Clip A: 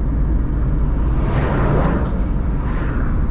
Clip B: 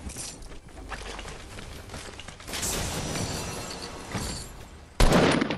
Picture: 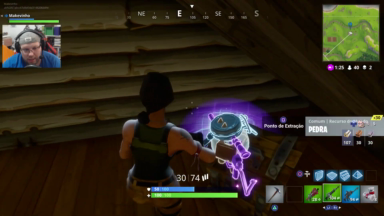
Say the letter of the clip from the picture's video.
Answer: B